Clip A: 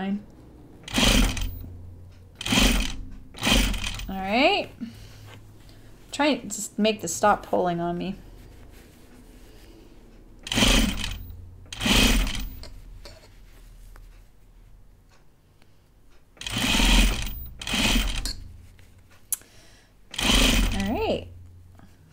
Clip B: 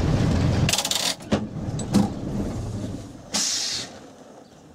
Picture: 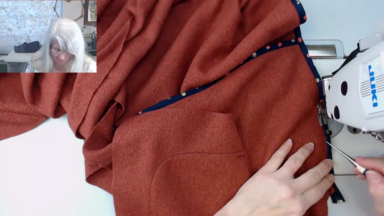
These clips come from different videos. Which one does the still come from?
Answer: A